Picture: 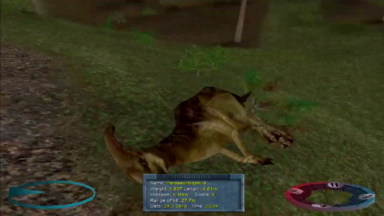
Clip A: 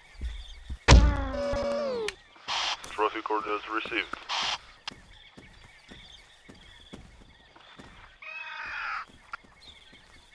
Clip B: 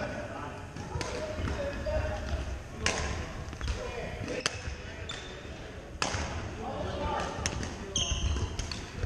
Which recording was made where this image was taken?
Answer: A